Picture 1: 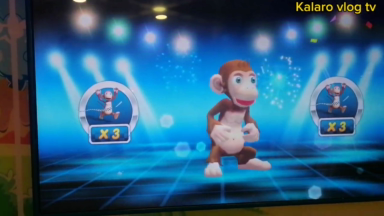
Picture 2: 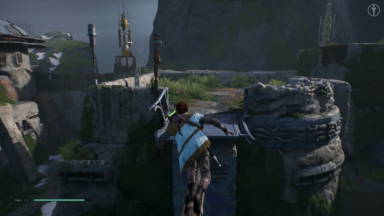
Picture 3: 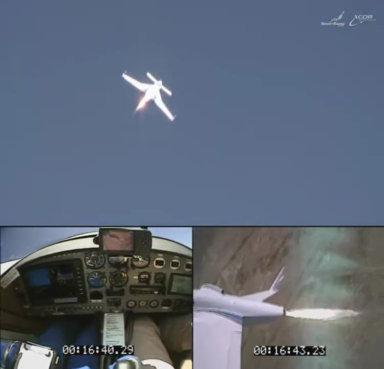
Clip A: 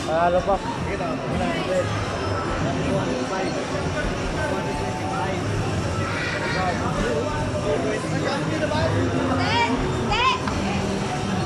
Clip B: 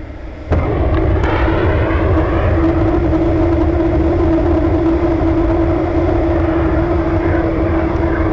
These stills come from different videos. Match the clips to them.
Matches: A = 1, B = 3